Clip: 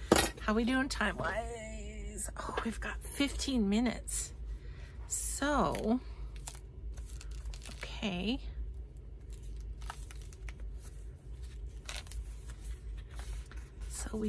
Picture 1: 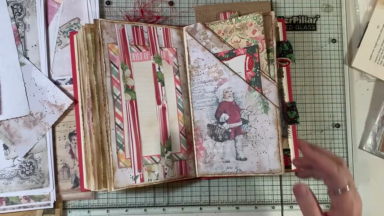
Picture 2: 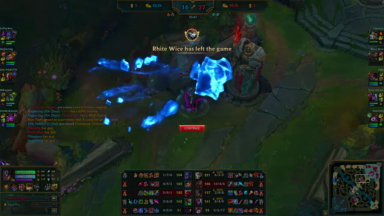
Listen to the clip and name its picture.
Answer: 1